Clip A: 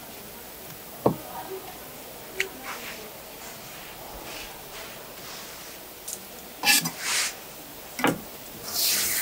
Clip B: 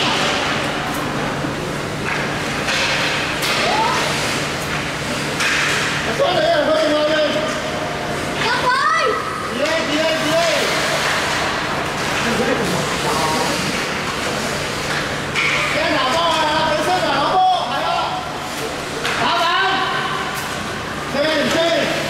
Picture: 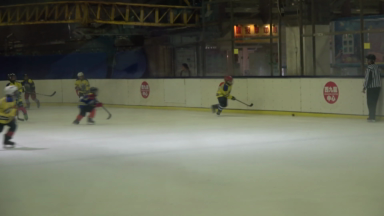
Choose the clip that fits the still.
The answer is B